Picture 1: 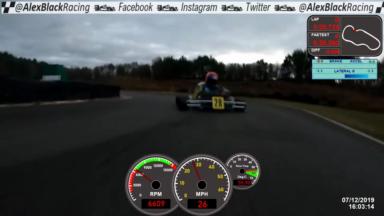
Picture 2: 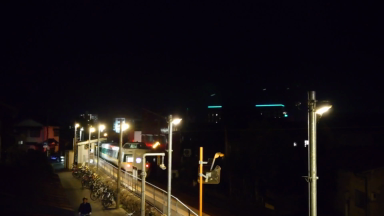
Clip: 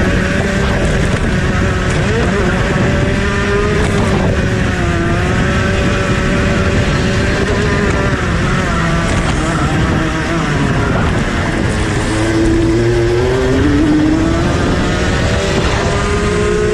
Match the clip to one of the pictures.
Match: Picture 1